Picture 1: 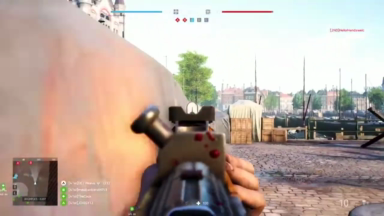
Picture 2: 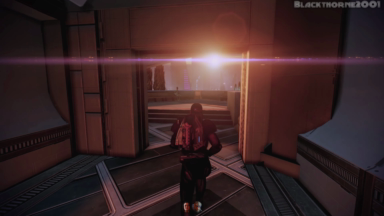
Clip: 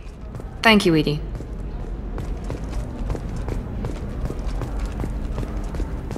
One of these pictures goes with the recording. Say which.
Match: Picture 2